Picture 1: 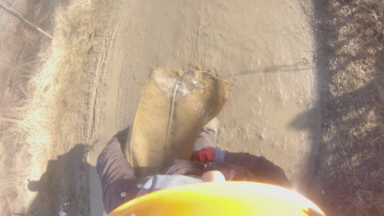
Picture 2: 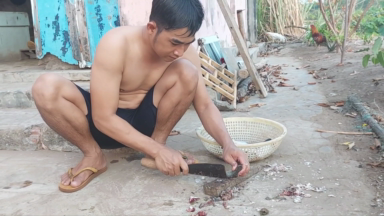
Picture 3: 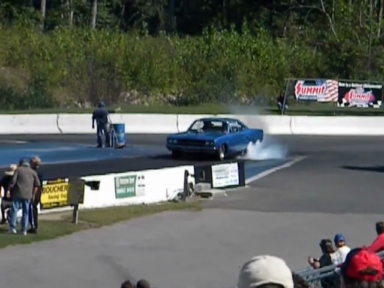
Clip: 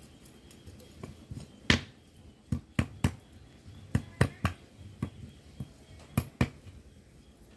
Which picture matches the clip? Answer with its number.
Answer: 2